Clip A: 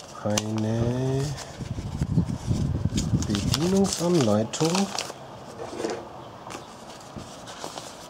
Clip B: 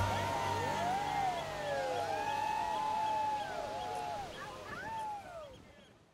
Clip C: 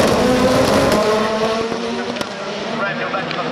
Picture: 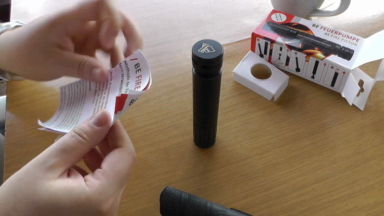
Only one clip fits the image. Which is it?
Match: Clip A